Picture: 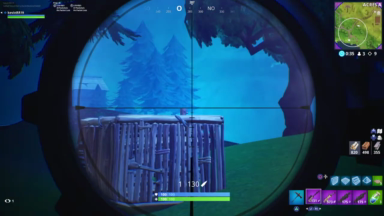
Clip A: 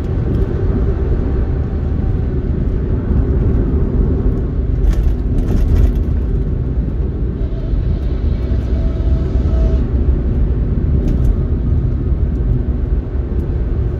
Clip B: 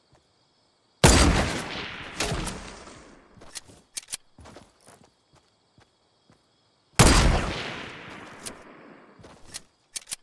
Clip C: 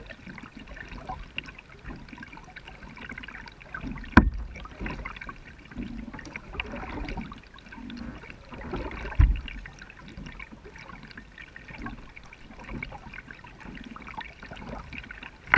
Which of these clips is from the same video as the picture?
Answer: B